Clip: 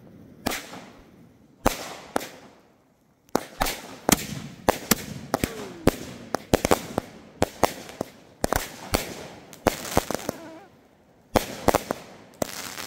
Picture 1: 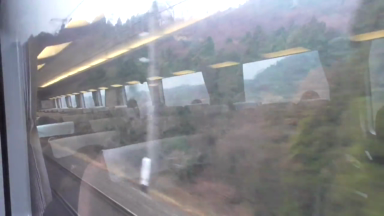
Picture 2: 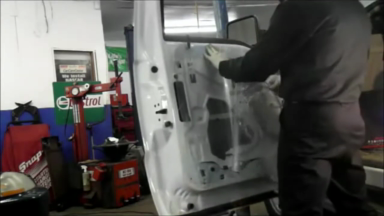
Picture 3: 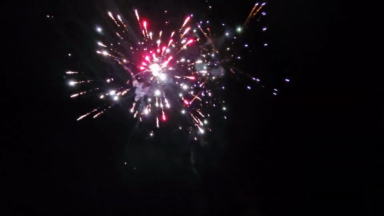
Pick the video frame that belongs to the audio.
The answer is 3